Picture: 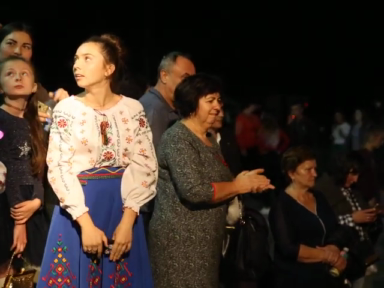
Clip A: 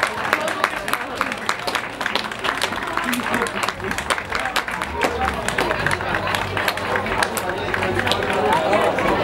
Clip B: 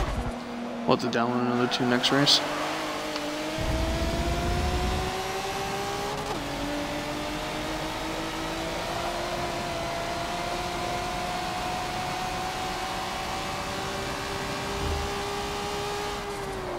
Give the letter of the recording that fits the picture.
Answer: A